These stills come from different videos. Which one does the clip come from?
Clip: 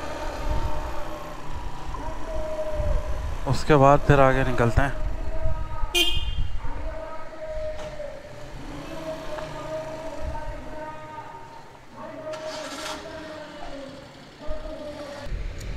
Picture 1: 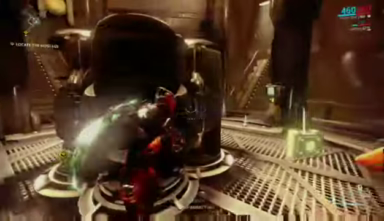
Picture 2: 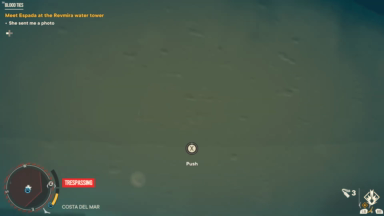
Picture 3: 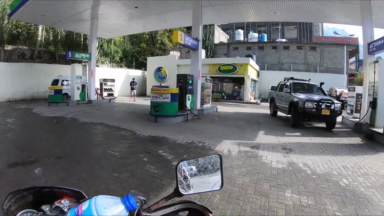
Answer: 3